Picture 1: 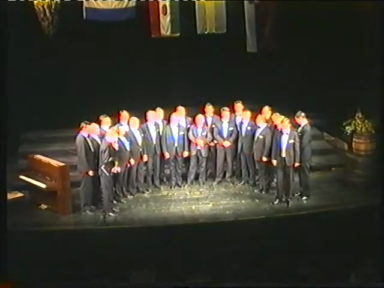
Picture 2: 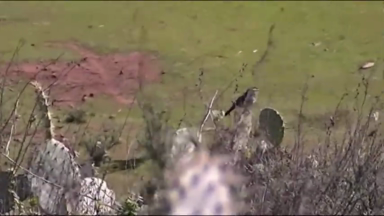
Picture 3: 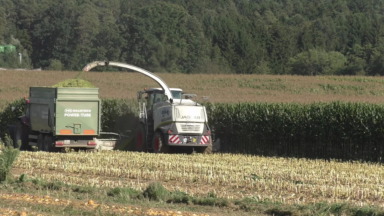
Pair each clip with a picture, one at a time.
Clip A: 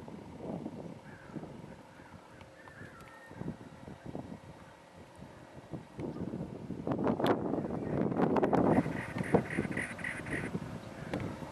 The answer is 2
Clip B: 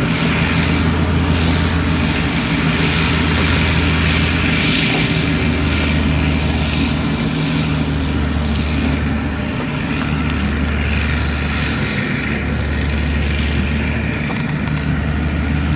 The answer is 3